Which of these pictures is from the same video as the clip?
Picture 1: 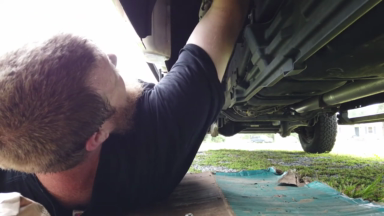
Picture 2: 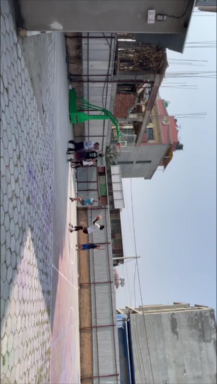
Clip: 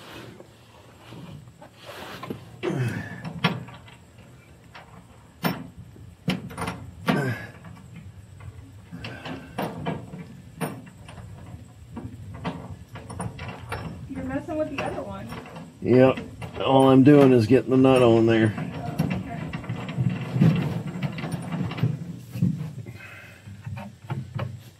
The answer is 1